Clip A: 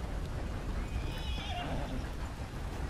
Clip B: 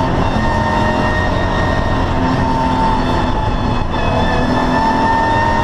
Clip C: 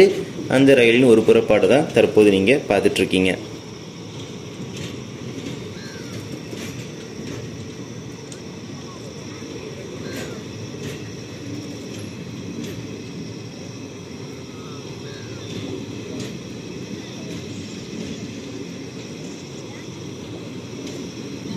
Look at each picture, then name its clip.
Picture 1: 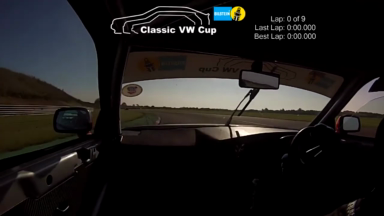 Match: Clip B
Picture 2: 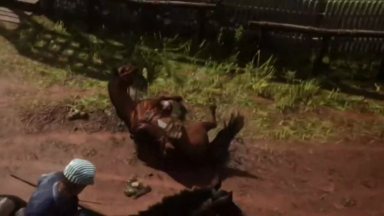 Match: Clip A